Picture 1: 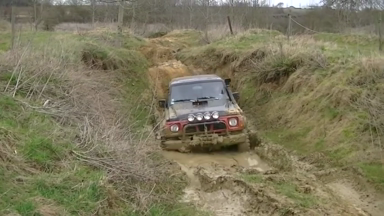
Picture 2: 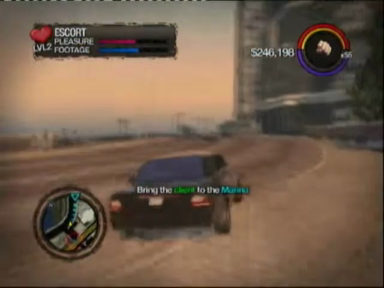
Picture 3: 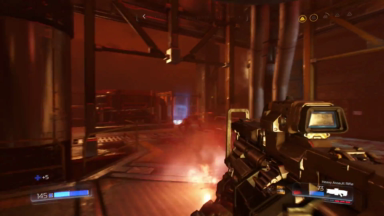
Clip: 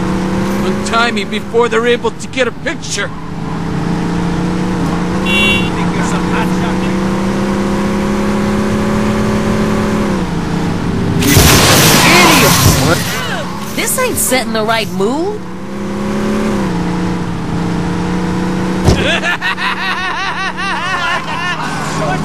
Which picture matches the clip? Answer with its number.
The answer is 2